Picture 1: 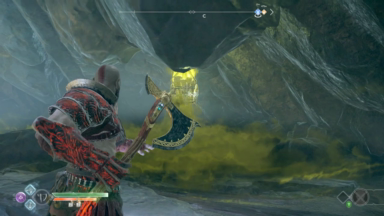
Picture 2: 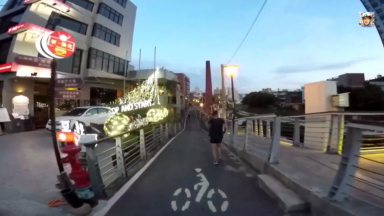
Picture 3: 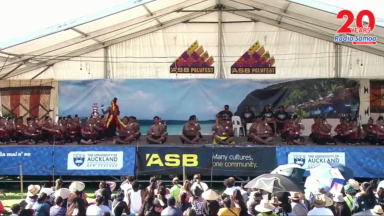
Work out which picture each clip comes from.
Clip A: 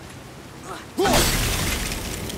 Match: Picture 1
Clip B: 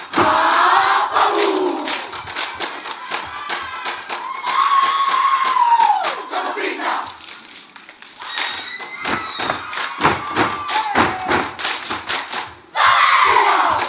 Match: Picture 3